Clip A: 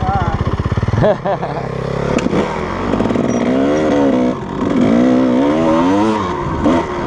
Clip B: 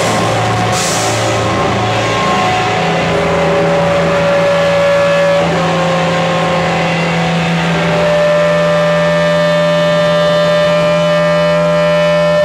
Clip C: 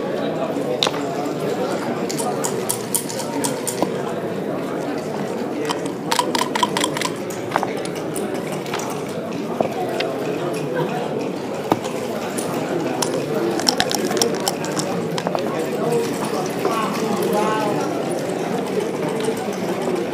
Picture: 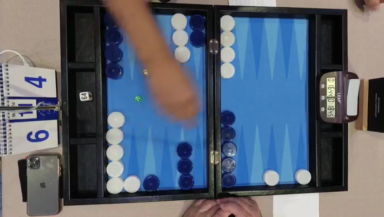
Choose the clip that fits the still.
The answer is C